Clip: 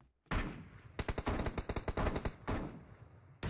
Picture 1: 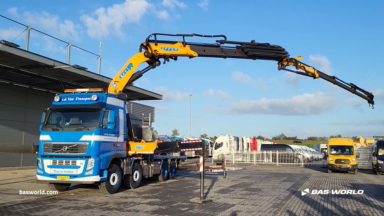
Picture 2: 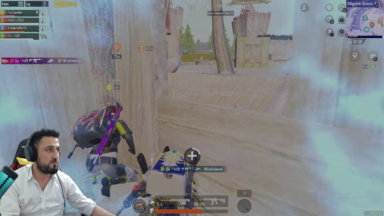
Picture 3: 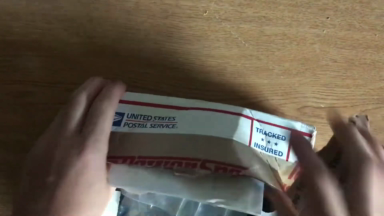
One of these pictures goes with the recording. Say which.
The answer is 2